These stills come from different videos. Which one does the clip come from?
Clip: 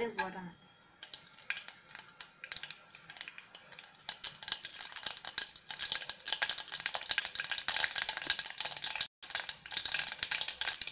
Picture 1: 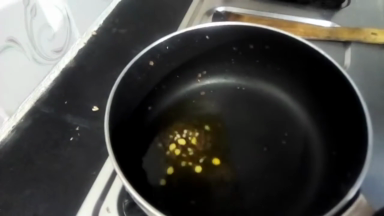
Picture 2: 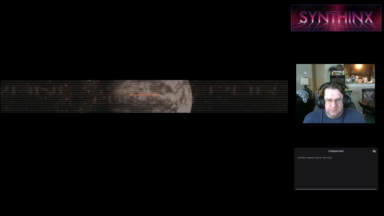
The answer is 1